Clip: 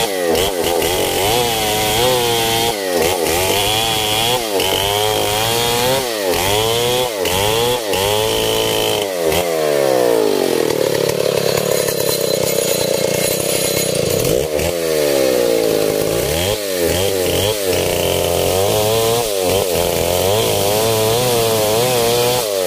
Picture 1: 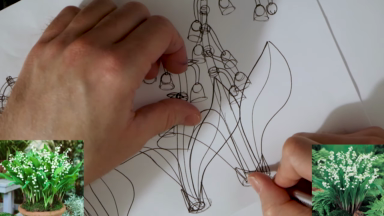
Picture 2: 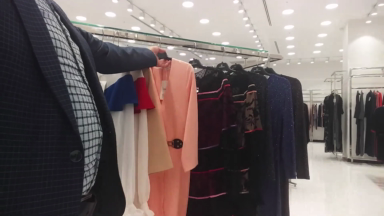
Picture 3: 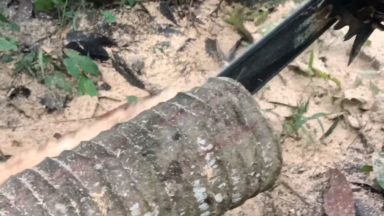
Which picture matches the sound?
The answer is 3